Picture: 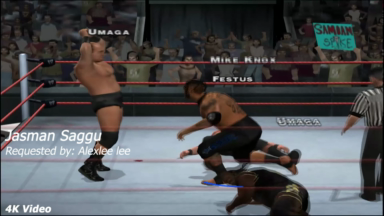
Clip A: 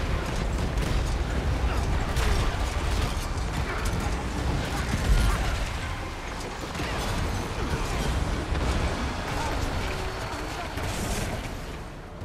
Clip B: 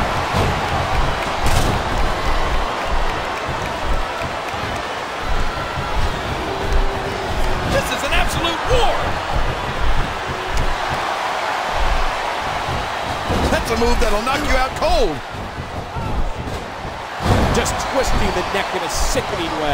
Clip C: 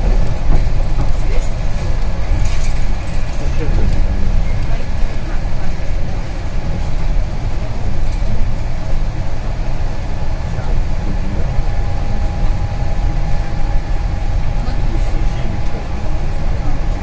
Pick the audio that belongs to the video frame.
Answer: B